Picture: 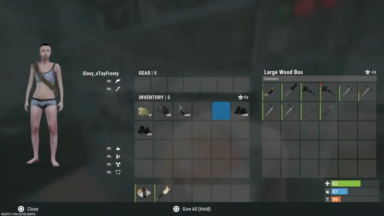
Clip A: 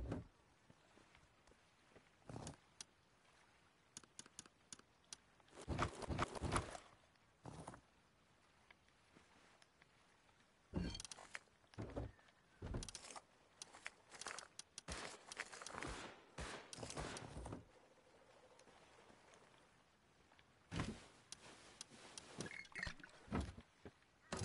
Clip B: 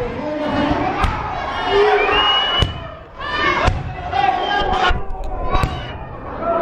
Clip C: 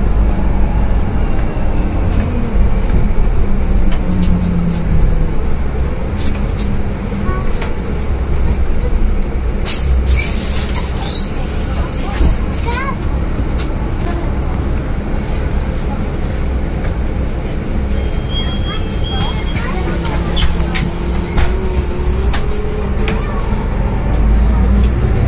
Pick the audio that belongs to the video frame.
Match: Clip A